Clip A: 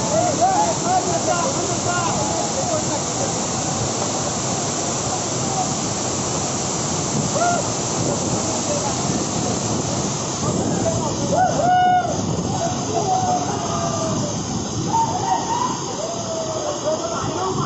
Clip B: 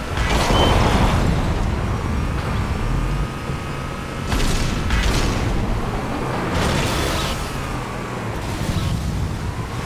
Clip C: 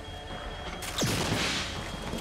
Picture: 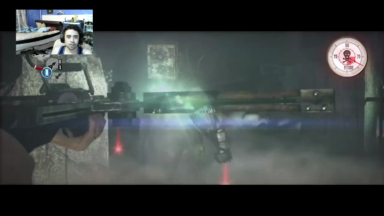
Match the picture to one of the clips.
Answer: C